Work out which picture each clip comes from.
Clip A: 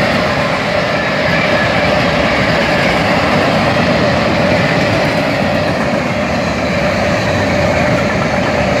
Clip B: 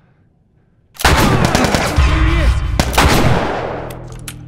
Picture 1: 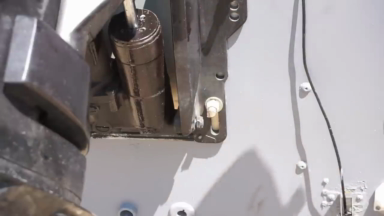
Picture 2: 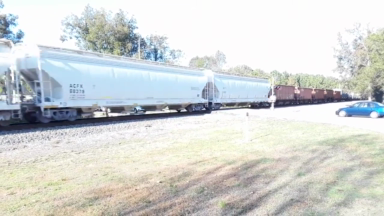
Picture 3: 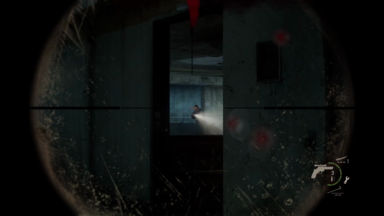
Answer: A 2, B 3